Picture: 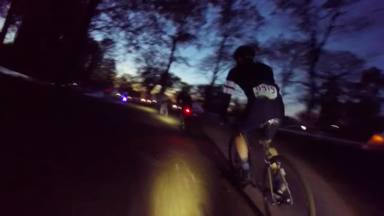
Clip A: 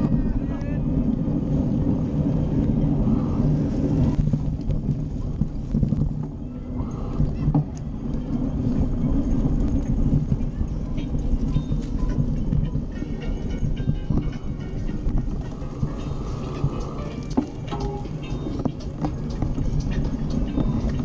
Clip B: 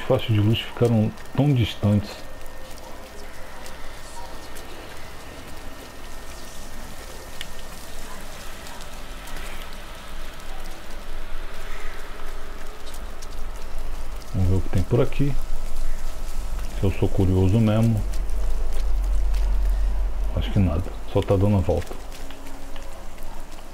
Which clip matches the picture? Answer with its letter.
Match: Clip A